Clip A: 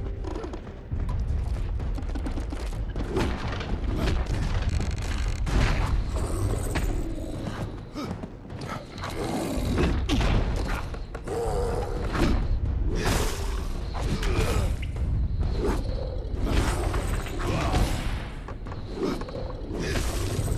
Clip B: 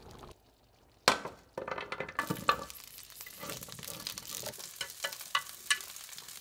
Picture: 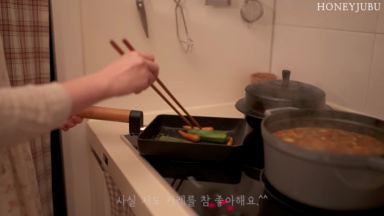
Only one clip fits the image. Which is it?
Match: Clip B